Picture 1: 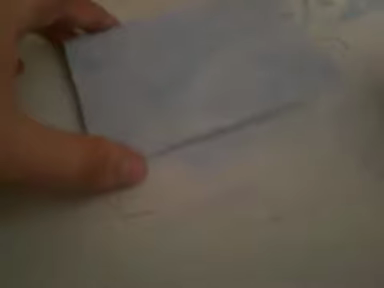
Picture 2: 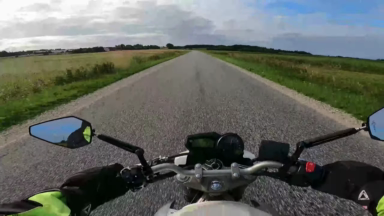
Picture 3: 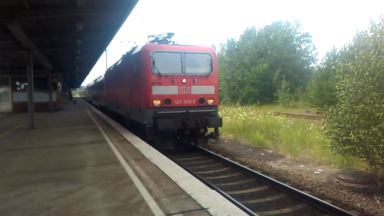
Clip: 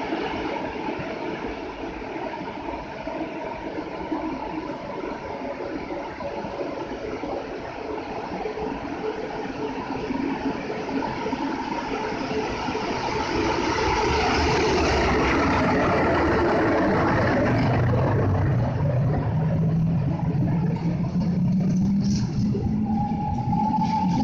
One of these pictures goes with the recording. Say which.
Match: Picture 3